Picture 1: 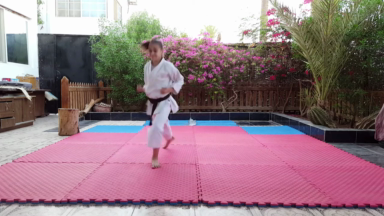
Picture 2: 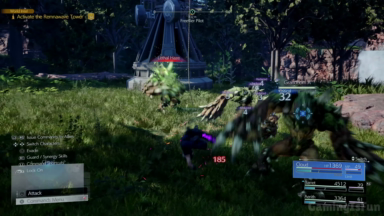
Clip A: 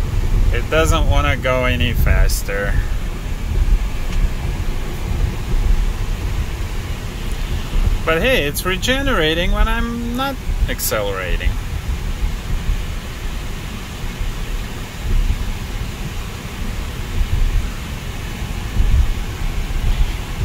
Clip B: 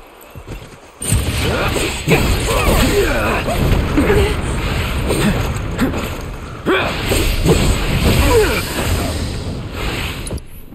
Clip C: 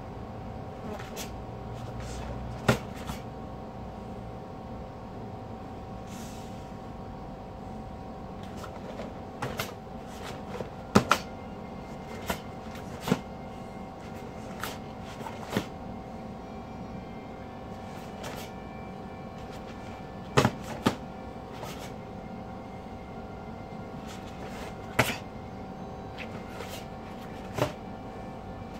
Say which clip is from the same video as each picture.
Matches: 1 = C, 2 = B